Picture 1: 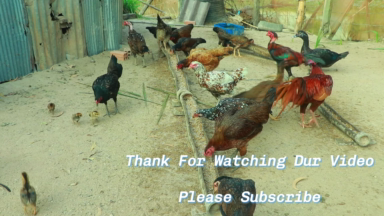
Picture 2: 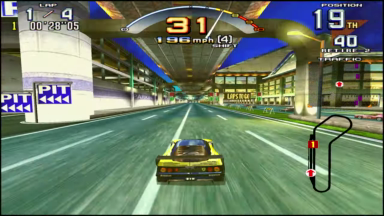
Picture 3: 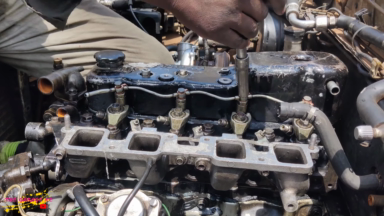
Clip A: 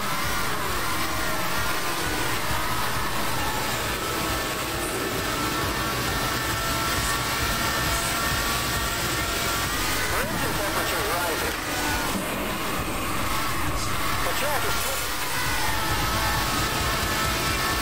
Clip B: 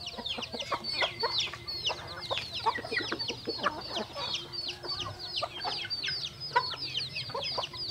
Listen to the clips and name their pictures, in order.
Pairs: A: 2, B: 1